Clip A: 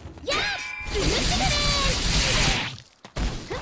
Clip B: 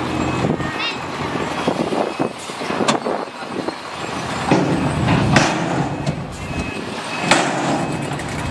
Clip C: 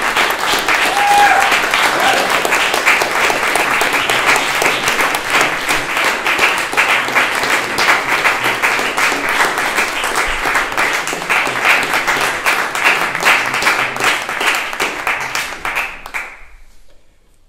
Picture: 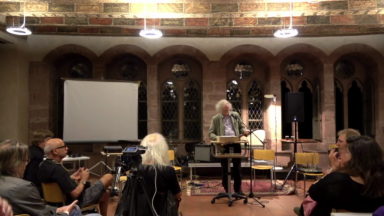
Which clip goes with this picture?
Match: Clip C